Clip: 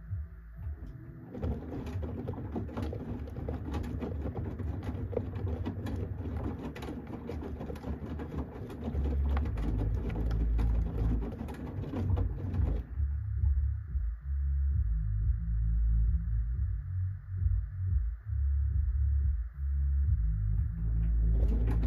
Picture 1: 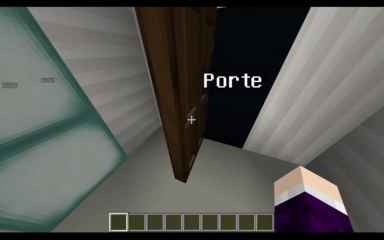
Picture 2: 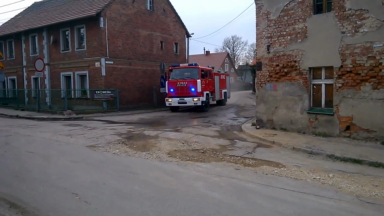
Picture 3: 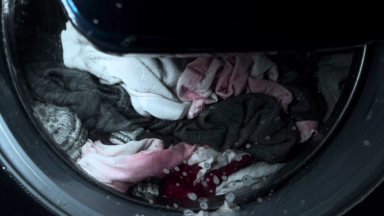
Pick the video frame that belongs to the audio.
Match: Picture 3